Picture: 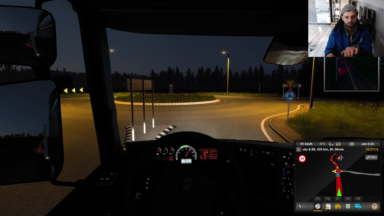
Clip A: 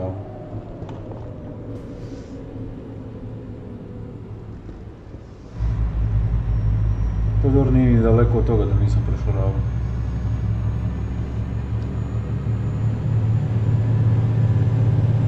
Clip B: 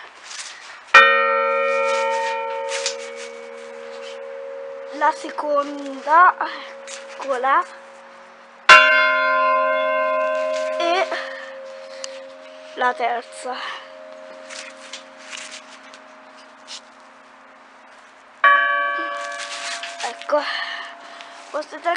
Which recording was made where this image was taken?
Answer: A